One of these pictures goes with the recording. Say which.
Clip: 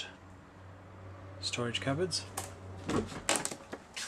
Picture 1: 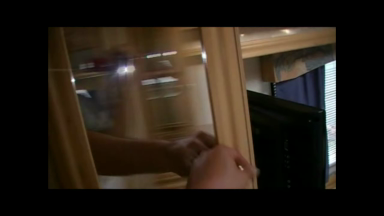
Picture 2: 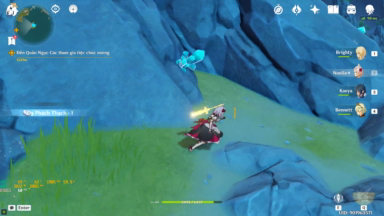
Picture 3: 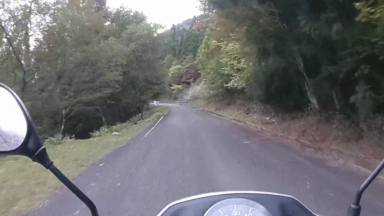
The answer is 1